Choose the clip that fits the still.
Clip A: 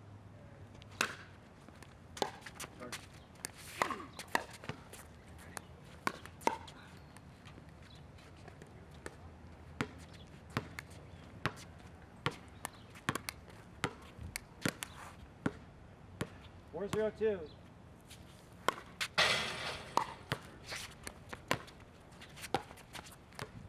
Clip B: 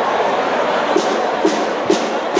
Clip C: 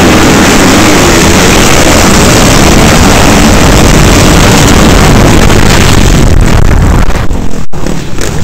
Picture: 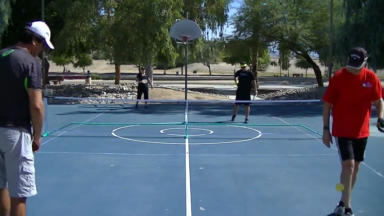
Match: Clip A